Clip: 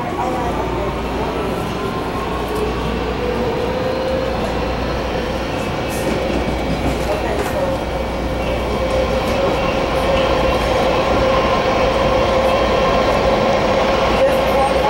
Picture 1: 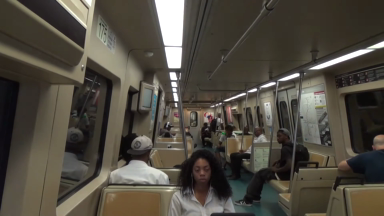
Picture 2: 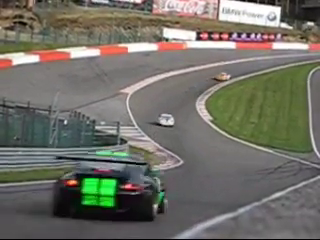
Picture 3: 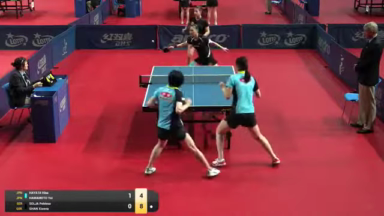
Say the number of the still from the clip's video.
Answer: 1